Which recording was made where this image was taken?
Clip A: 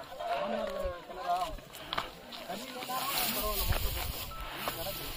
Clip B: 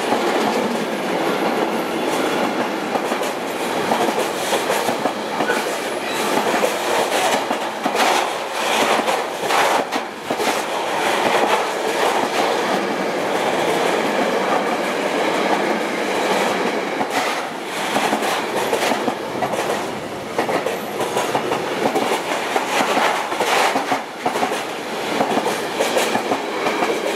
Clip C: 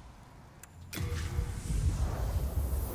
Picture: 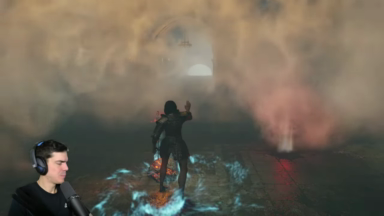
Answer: C